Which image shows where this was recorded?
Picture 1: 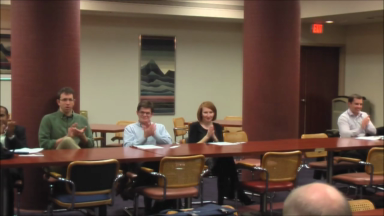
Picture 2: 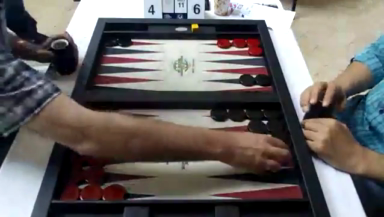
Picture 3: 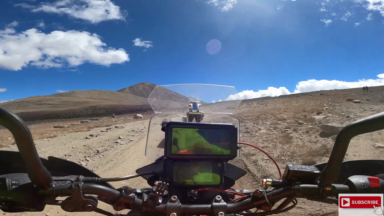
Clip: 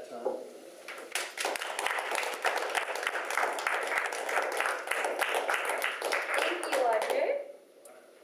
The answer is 1